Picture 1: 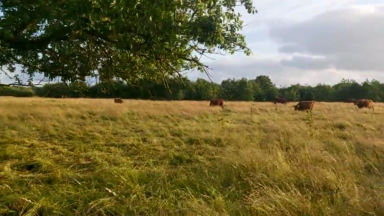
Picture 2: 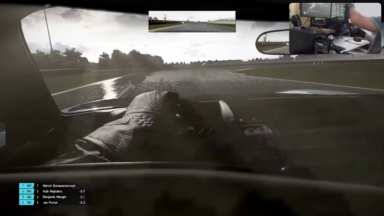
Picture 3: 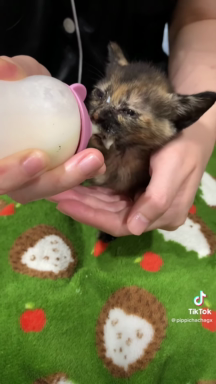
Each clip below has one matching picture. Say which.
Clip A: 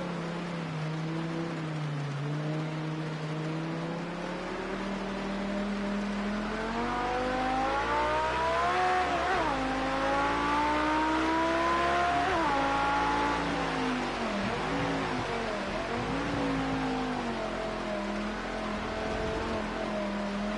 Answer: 2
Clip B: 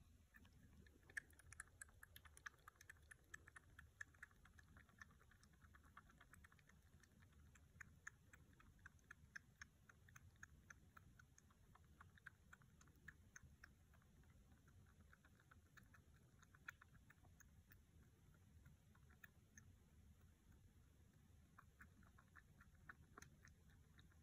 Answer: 3